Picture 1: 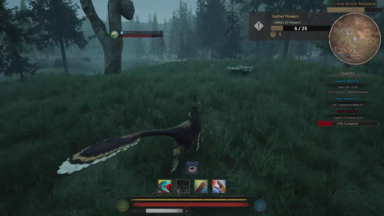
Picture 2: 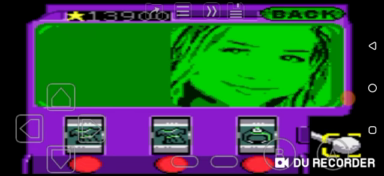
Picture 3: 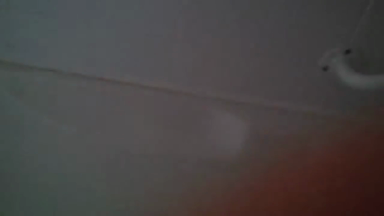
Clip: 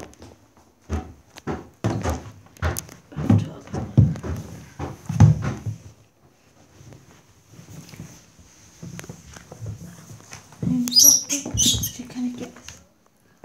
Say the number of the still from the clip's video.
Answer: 3